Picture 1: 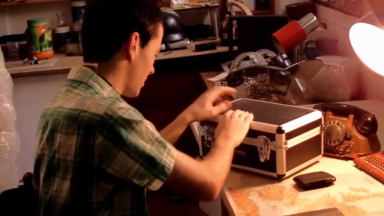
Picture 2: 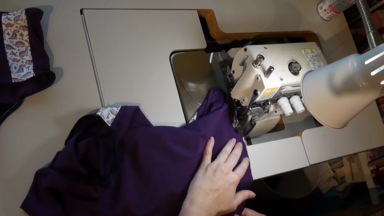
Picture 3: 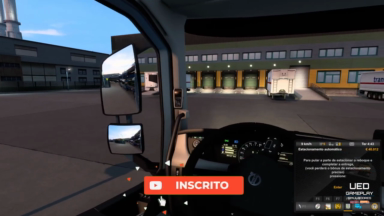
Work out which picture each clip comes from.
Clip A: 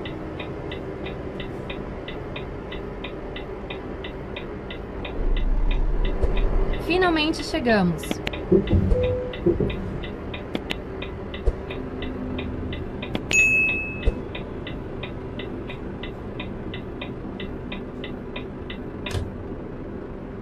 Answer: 3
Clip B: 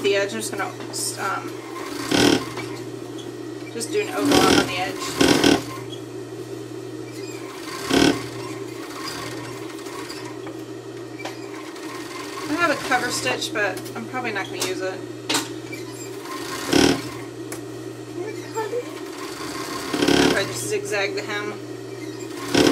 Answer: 2